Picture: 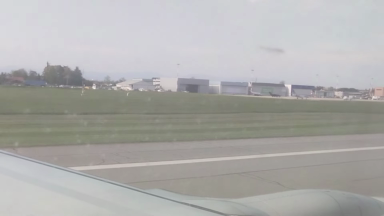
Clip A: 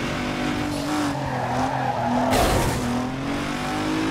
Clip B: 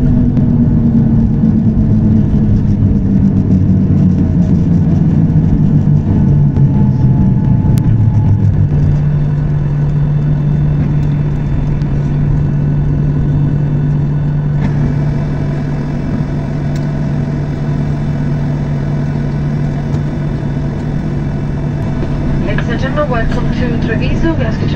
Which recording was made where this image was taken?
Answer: B